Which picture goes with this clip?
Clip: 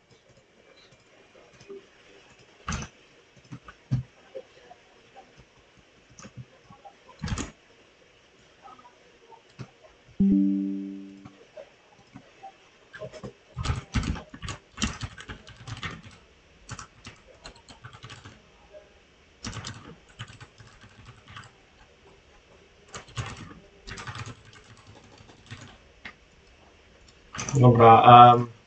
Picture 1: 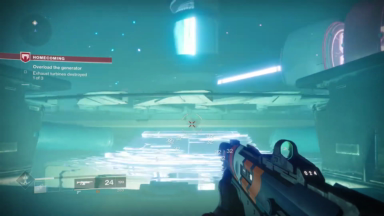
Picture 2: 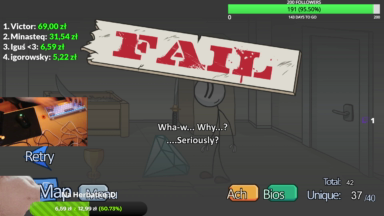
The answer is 2